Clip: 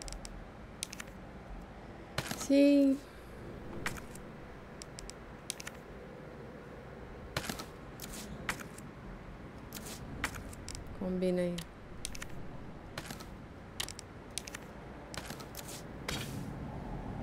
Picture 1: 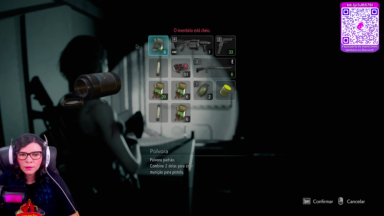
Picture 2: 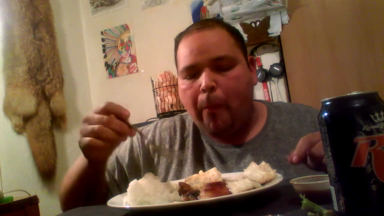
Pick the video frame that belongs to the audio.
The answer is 1